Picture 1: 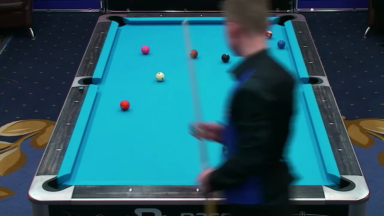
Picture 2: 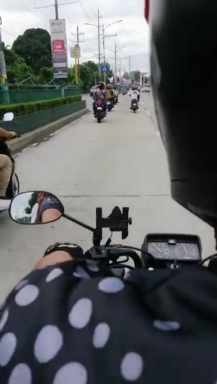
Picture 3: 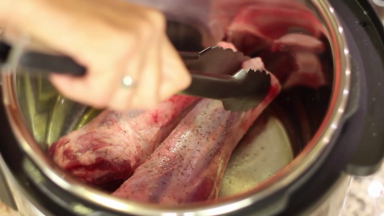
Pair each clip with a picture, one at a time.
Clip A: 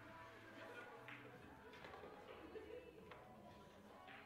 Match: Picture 1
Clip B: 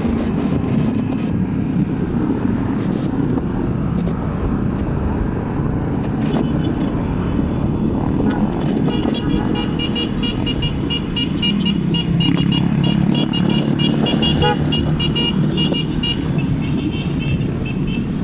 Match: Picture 2